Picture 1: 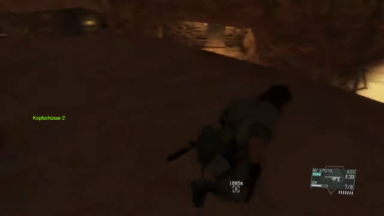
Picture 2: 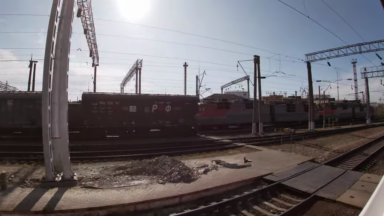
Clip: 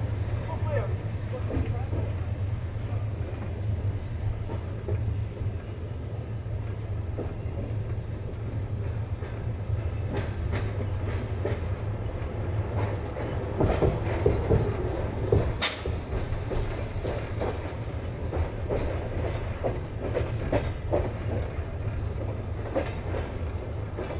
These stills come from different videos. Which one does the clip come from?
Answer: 2